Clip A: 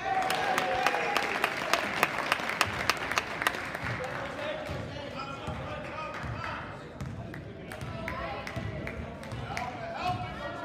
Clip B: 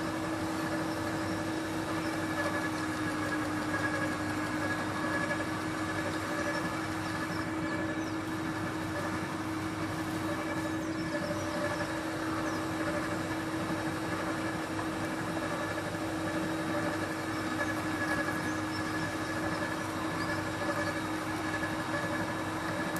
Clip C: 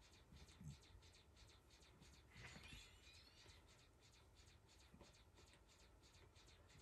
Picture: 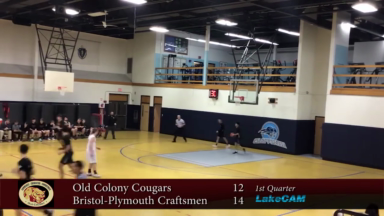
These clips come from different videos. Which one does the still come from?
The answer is A